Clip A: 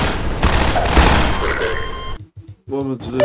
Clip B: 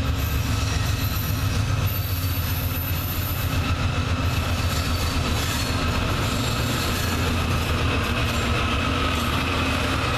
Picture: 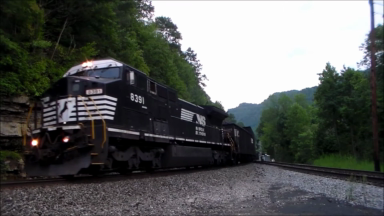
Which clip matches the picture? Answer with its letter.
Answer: B